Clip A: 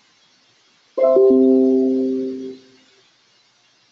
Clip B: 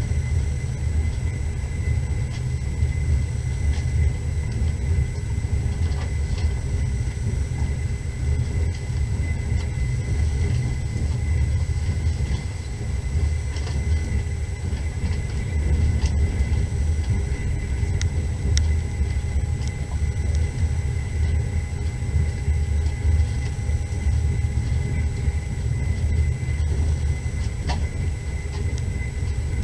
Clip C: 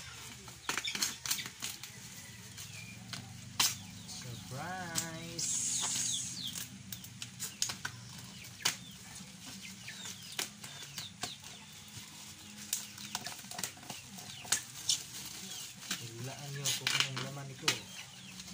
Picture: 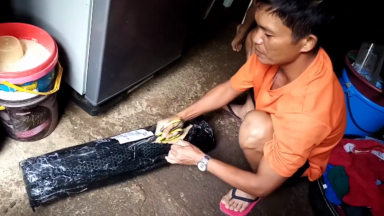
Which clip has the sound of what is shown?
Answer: C